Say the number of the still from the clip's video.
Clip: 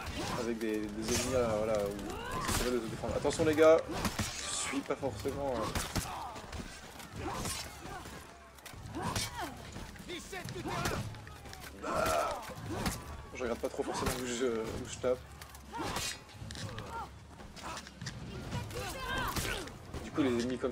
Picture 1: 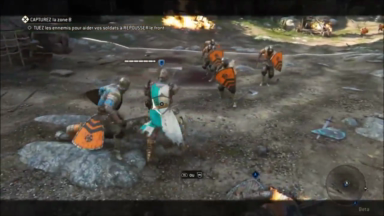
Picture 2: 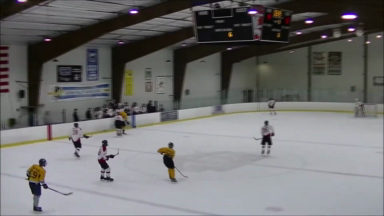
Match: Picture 1